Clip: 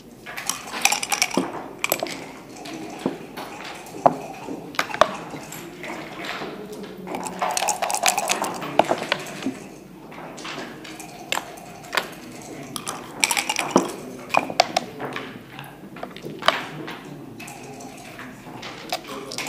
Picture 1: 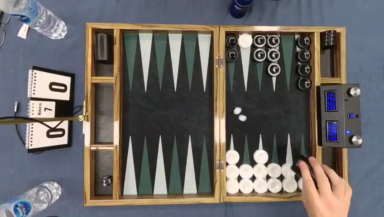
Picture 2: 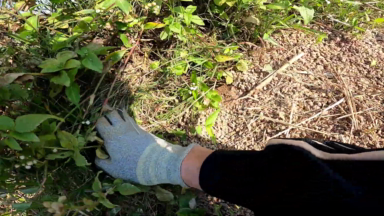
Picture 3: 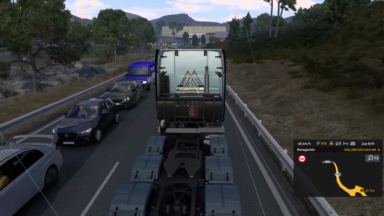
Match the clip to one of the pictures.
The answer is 1